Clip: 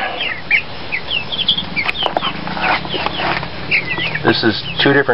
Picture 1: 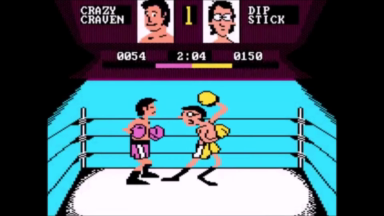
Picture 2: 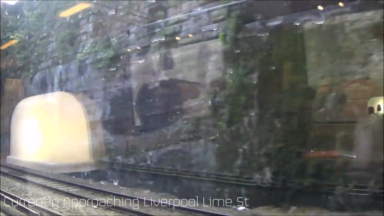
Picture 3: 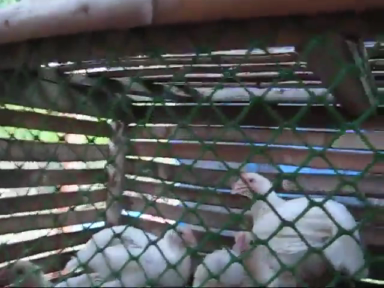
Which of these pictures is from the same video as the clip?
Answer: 3